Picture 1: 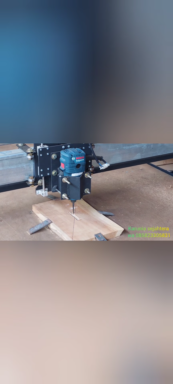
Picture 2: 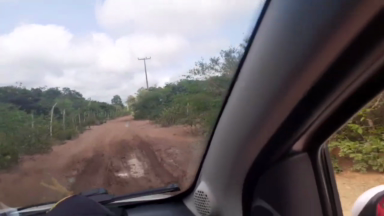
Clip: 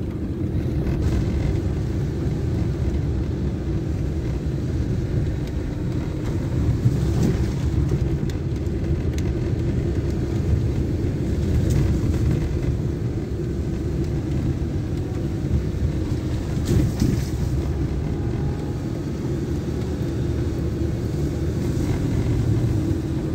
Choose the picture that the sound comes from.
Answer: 2